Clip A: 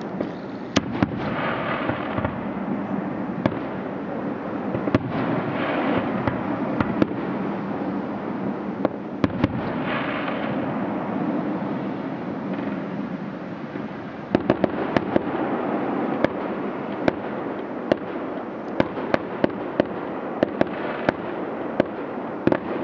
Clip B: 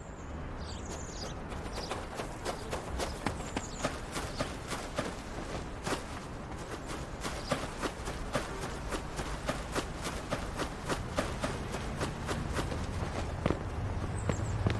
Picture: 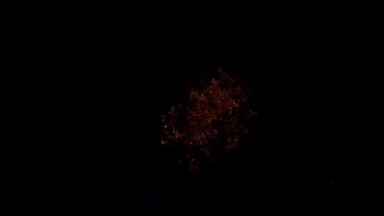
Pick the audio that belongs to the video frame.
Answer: A